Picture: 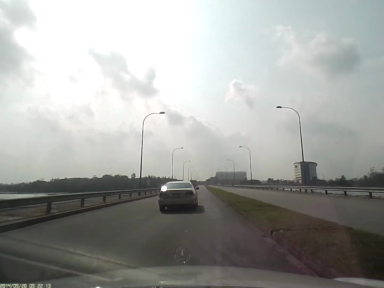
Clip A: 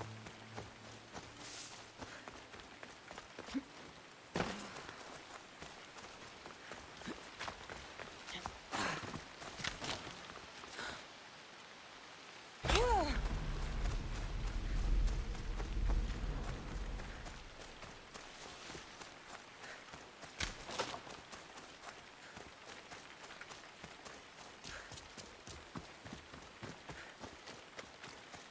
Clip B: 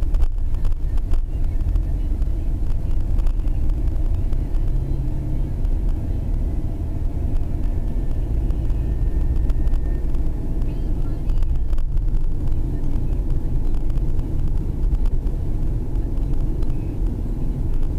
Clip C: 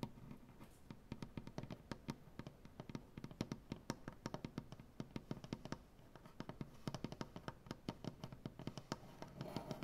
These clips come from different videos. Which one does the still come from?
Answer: B